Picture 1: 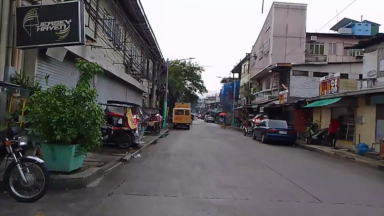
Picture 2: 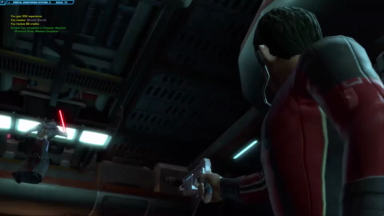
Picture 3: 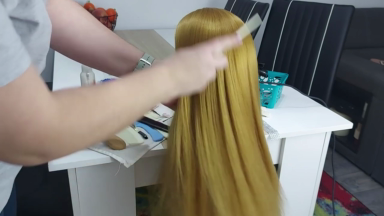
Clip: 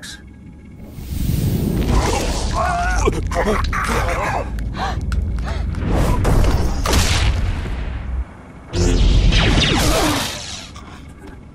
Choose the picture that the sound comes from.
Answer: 2